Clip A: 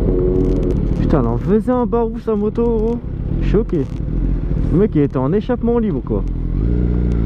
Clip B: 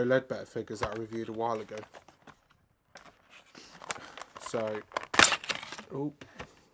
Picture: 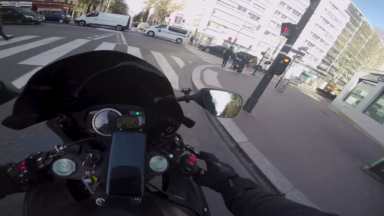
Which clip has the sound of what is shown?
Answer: A